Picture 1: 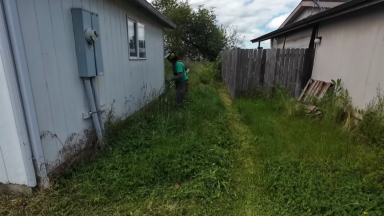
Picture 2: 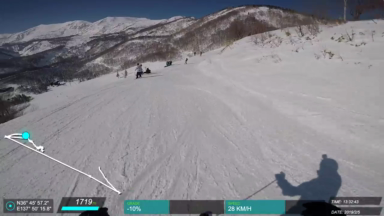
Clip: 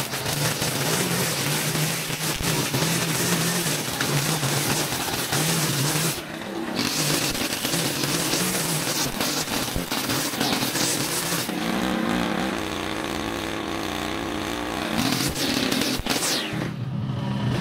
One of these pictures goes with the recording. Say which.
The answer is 1